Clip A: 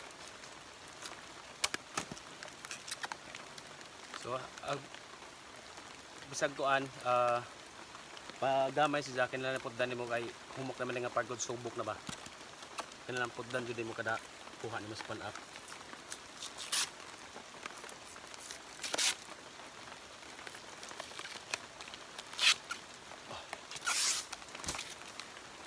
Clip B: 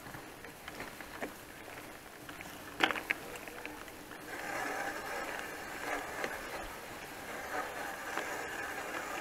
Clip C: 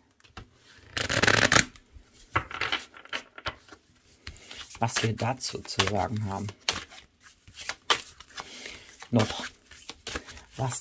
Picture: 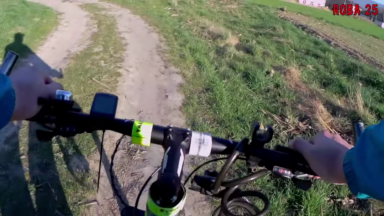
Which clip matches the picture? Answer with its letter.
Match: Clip B